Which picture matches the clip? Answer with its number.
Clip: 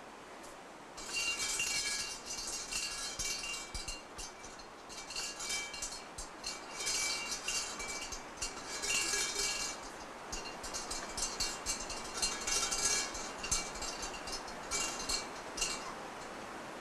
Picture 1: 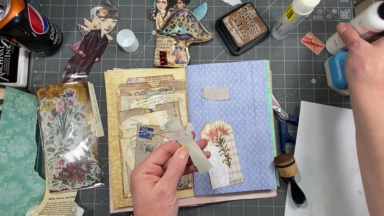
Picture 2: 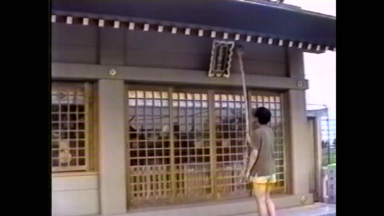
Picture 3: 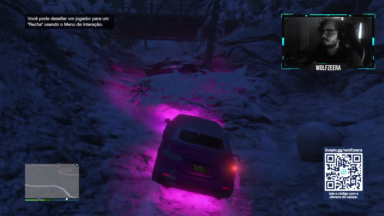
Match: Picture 2